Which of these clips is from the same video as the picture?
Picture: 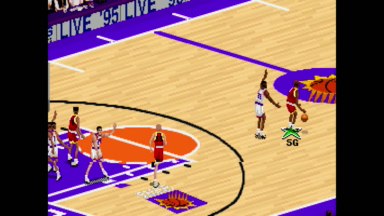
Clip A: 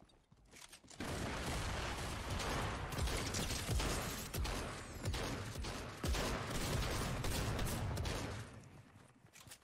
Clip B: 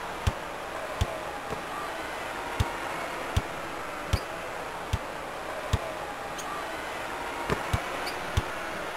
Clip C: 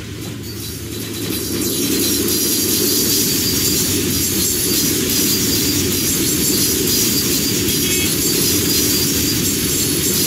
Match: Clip B